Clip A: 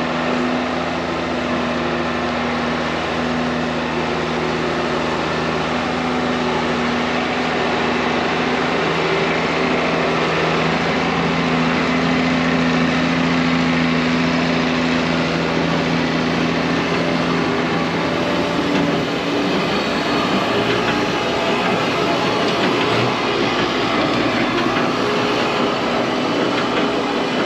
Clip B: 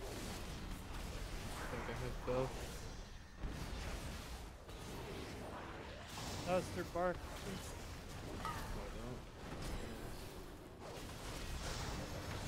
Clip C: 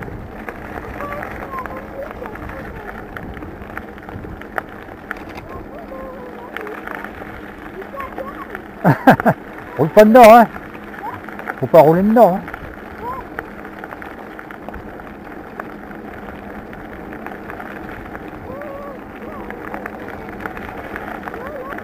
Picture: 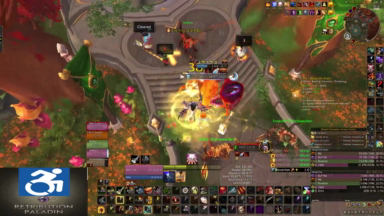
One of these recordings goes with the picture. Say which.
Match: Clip B